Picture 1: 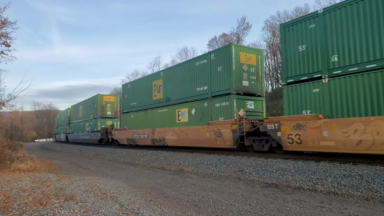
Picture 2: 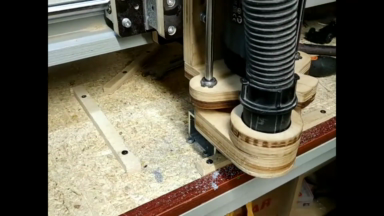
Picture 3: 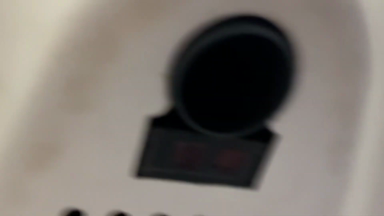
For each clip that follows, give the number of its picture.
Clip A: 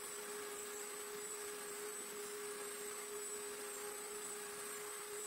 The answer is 2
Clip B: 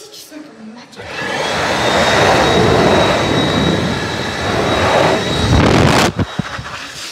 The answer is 3